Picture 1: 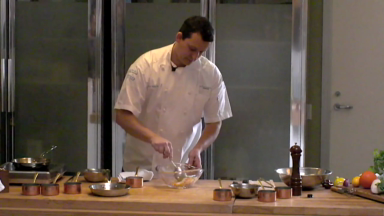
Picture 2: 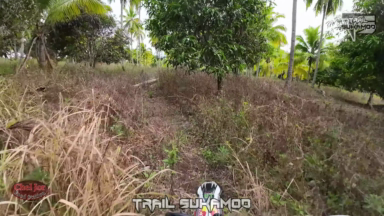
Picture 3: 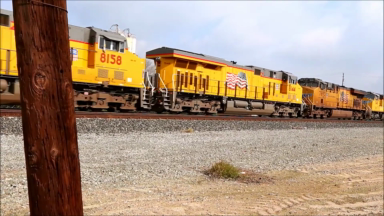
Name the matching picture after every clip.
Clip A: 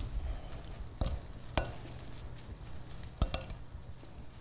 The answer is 1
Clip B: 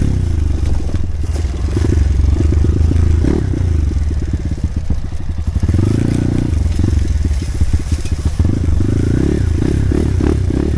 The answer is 2